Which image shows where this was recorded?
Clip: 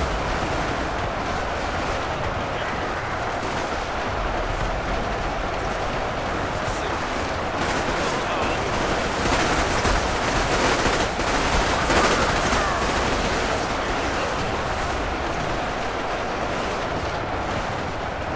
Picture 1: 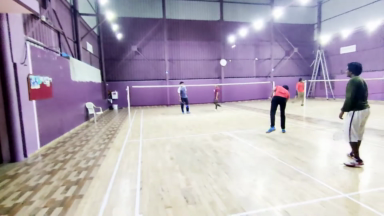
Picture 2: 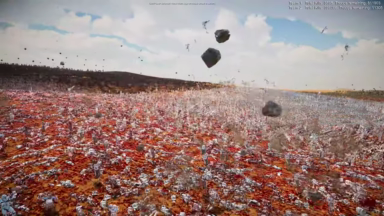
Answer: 2